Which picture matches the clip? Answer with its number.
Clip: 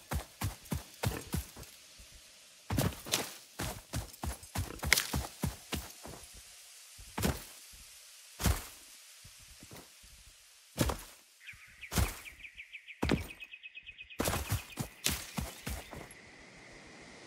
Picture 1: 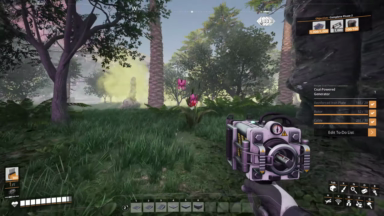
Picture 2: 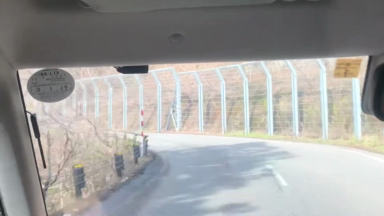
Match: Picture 1